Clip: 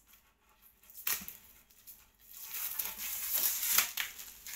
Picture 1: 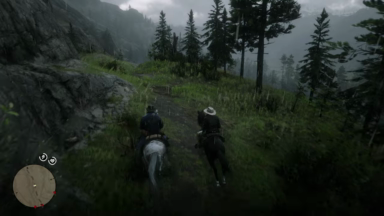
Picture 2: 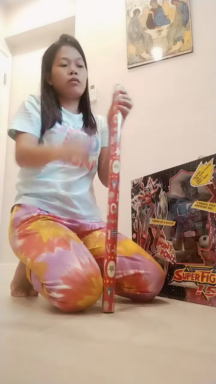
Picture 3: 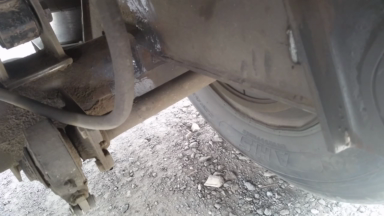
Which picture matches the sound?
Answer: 2